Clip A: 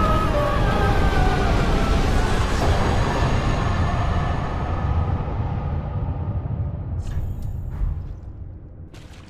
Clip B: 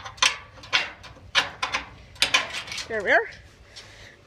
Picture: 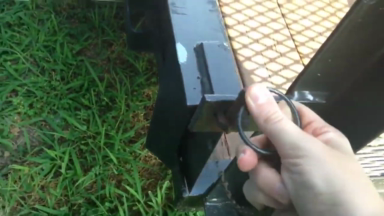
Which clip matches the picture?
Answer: B